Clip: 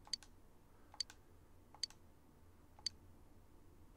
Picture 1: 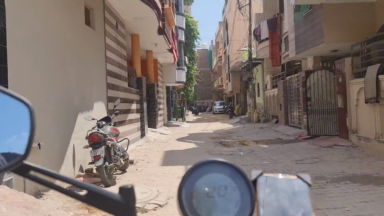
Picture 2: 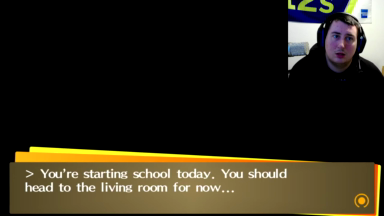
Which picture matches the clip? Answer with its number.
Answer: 2